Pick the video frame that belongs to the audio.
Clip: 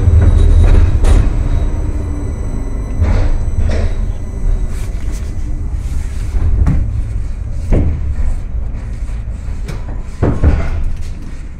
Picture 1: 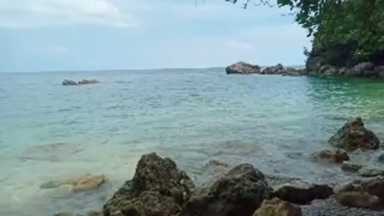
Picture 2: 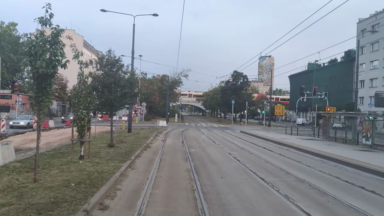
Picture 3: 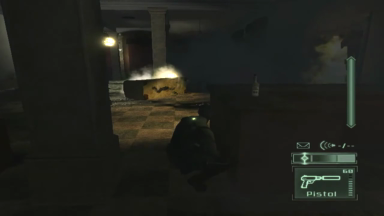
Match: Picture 2